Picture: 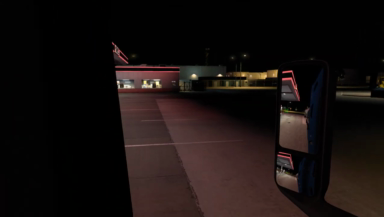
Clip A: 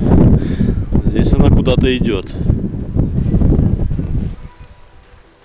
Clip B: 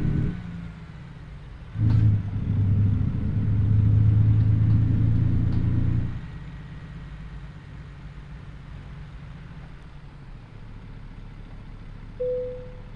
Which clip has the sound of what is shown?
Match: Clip B